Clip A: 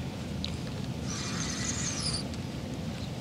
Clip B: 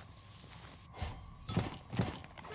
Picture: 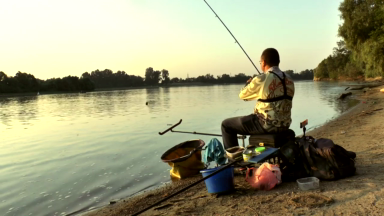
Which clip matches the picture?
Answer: A